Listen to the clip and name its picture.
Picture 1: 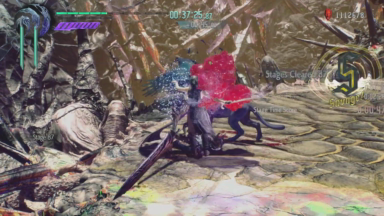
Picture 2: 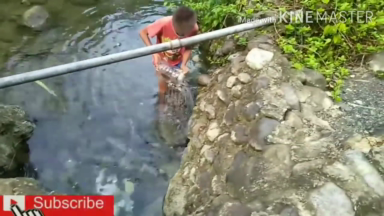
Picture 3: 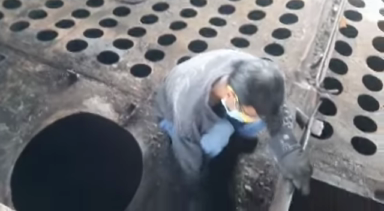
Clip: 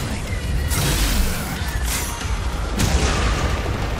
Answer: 1